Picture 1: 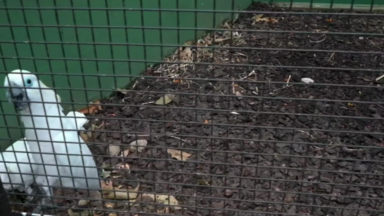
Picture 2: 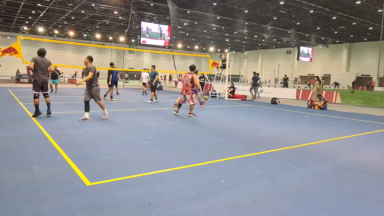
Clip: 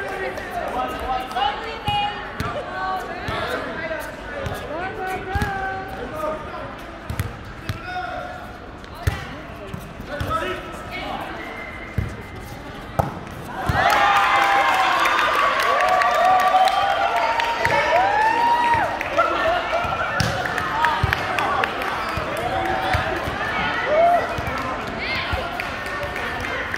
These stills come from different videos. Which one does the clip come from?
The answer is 2